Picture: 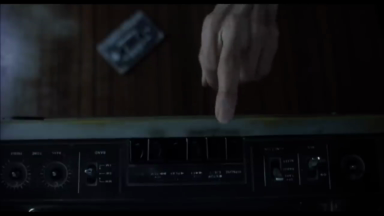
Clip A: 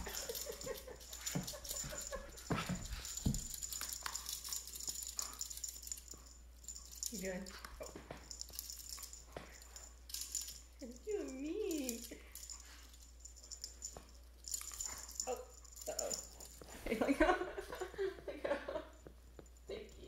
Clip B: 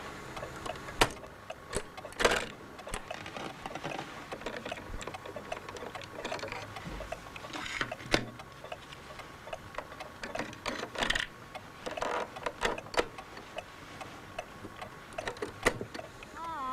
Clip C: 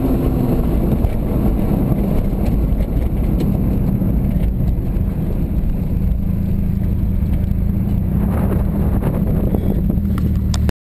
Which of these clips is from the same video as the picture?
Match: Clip B